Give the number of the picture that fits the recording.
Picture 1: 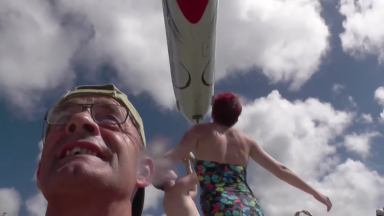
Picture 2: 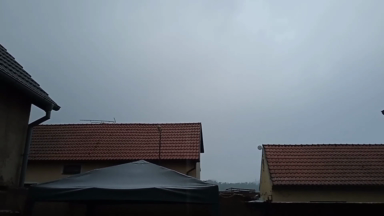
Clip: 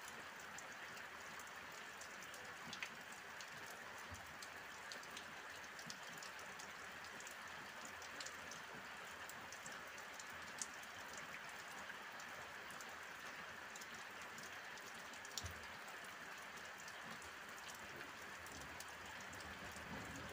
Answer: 2